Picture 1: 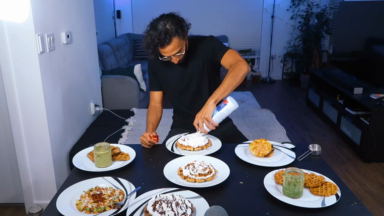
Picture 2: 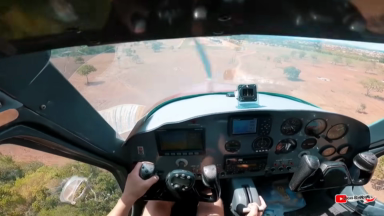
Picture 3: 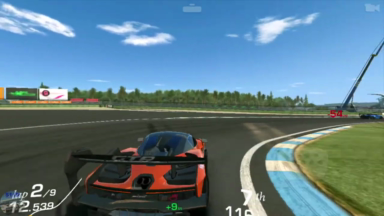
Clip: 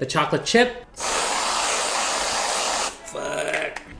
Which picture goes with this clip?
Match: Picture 1